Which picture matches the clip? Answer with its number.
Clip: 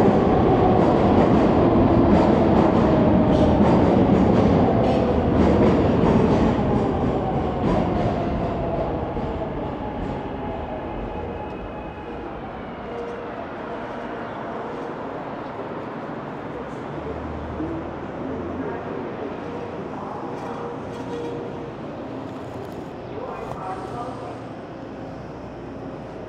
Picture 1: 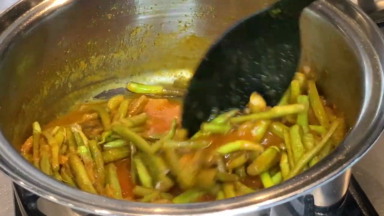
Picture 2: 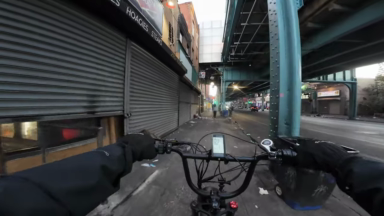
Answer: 2